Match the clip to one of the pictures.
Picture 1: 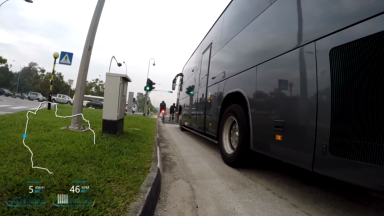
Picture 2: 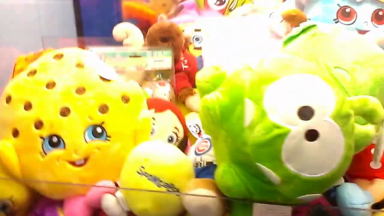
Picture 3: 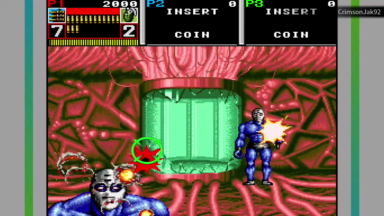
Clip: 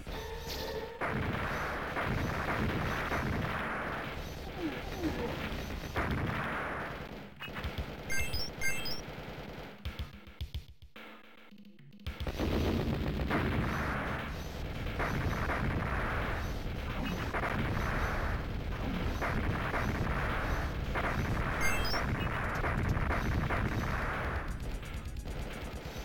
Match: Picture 3